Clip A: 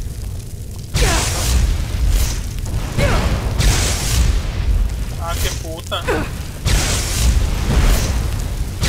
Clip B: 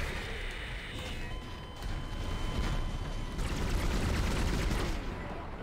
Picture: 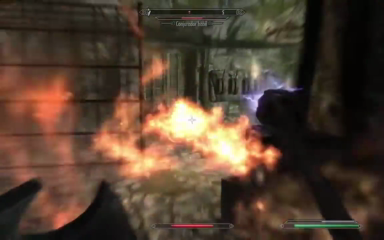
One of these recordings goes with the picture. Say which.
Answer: A